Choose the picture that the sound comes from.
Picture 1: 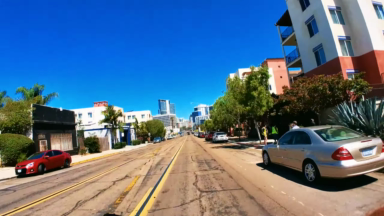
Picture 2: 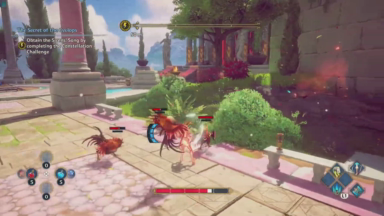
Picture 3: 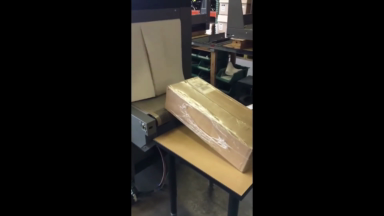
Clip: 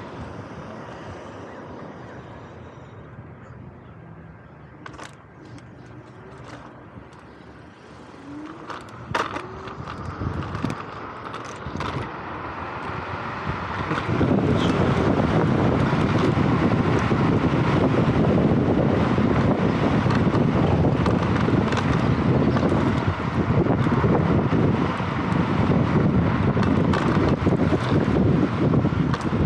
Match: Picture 1